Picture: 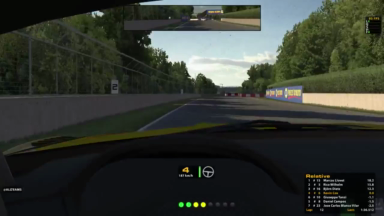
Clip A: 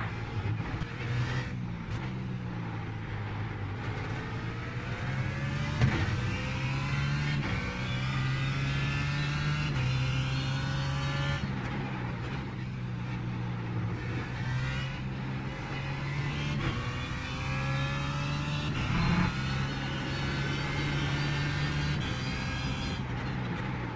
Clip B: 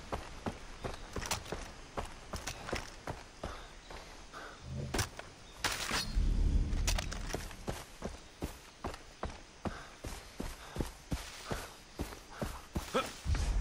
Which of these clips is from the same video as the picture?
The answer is A